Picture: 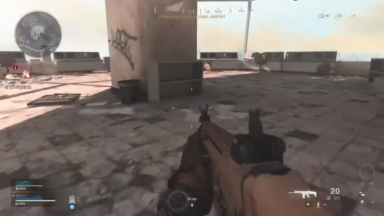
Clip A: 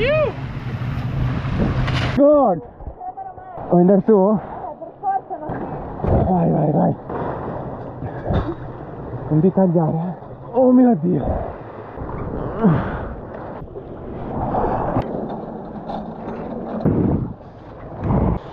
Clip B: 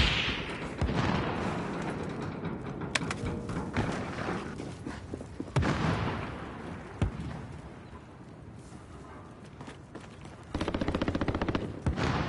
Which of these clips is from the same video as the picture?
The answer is B